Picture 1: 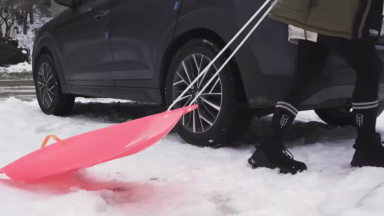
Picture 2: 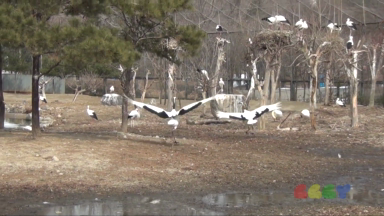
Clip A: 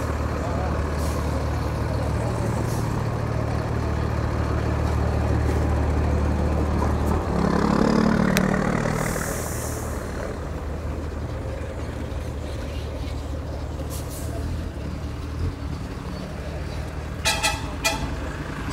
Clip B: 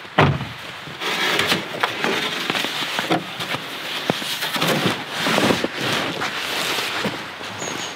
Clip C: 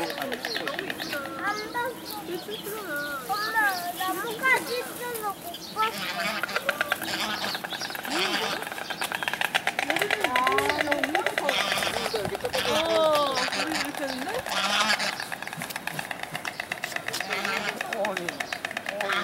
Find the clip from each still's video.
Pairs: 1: B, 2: C